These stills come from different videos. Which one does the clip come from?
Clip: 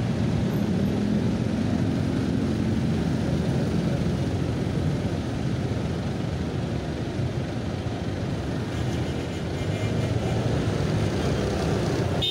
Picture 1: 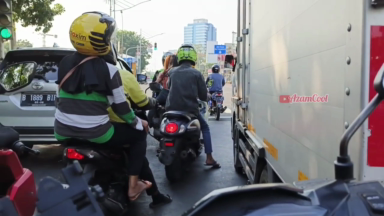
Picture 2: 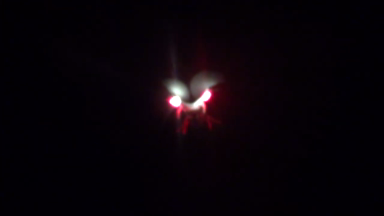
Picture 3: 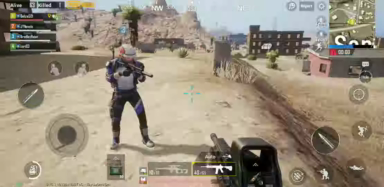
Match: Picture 1